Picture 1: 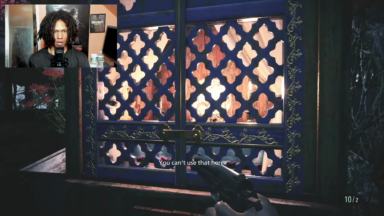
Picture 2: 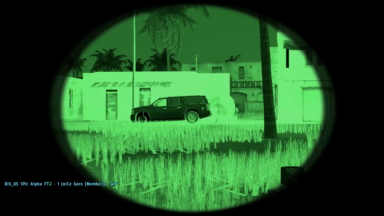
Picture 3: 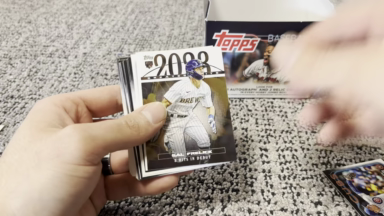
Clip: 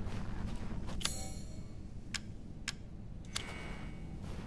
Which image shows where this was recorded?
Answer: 1